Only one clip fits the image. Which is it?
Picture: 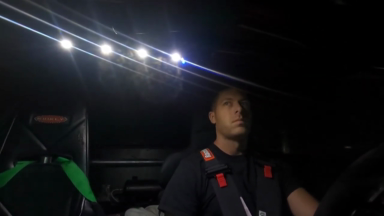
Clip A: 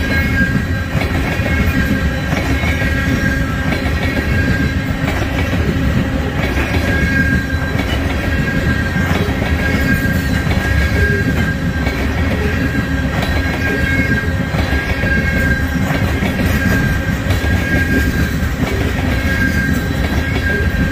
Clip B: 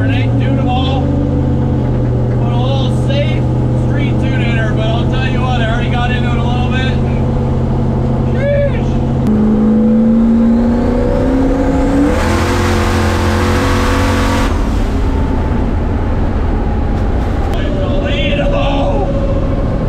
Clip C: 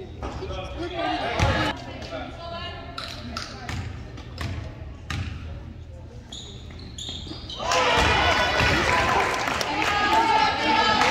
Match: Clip B